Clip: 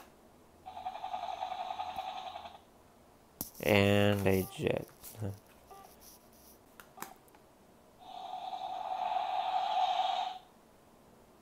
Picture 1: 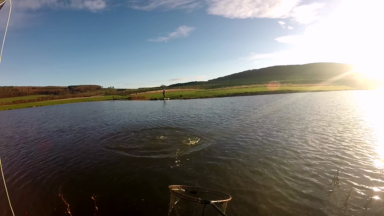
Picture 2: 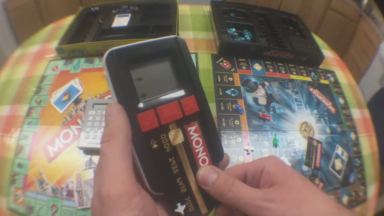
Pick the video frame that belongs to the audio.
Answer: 2